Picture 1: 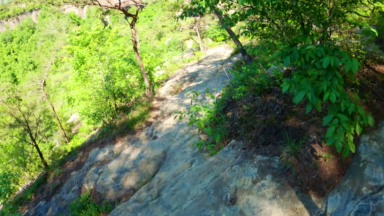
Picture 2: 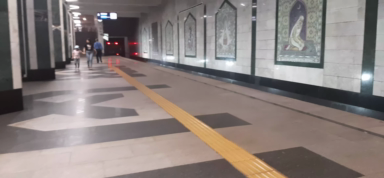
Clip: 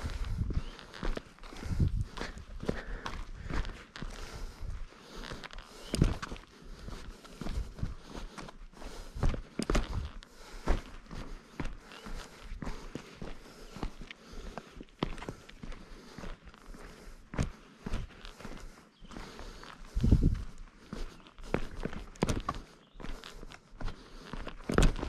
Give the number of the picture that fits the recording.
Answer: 1